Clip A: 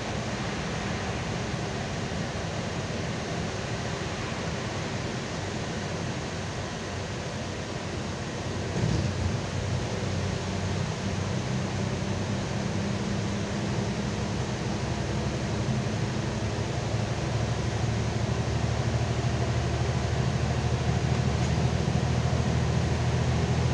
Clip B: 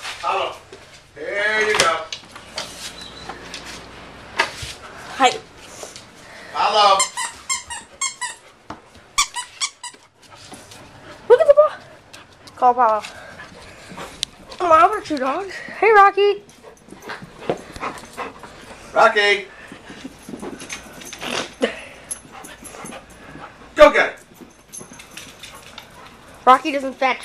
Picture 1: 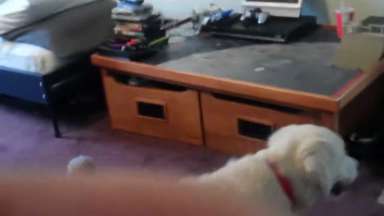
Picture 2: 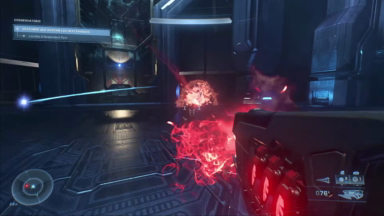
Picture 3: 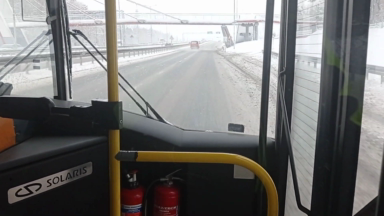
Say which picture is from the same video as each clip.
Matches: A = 3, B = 1